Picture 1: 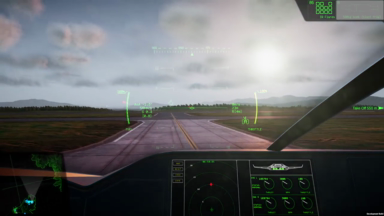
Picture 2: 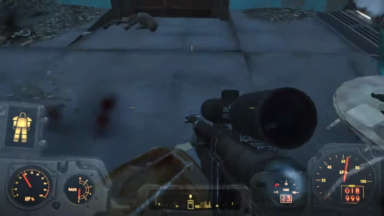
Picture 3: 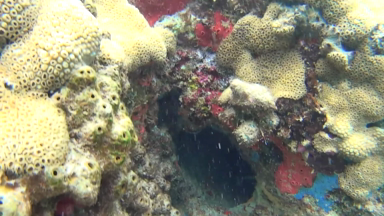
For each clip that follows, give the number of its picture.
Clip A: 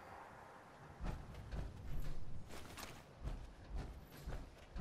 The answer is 2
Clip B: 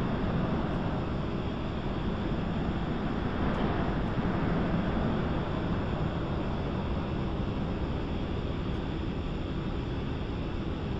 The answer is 1